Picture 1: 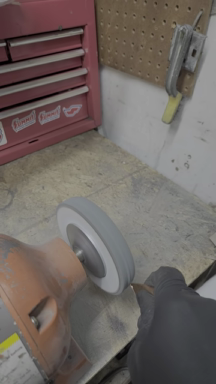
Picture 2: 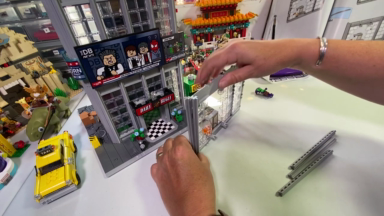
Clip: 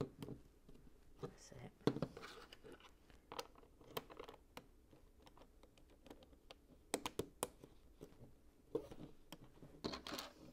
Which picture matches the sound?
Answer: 2